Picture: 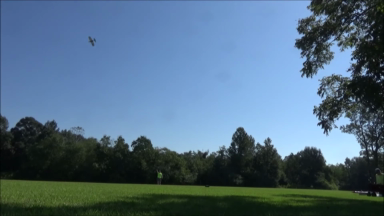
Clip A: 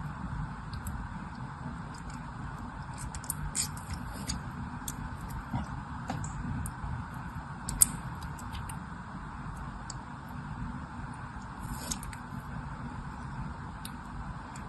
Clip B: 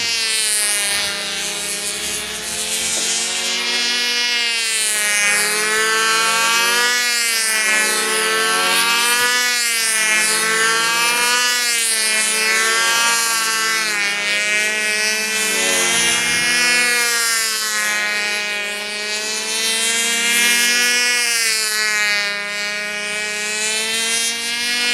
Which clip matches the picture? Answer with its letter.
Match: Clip B